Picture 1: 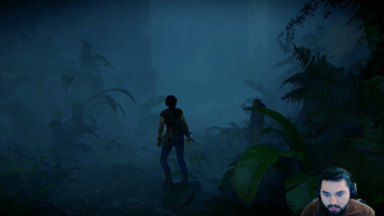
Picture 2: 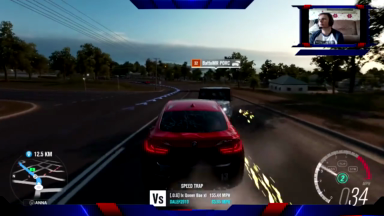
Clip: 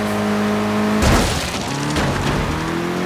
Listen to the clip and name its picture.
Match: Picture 2